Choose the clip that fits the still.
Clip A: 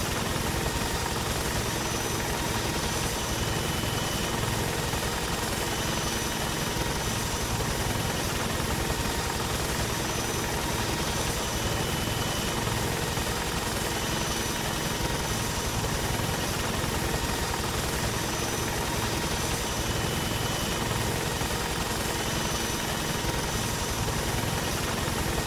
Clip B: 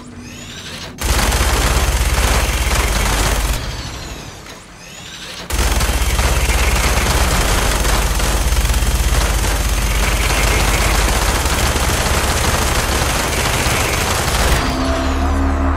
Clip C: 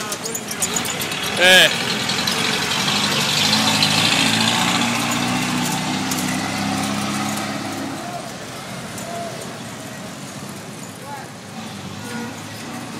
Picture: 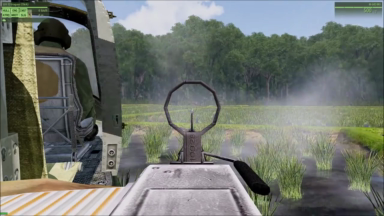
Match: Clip A